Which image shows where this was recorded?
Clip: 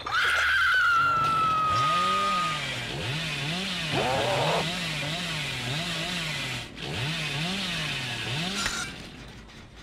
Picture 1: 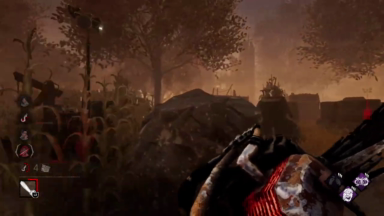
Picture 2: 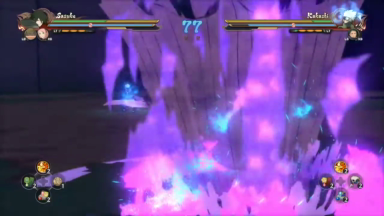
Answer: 1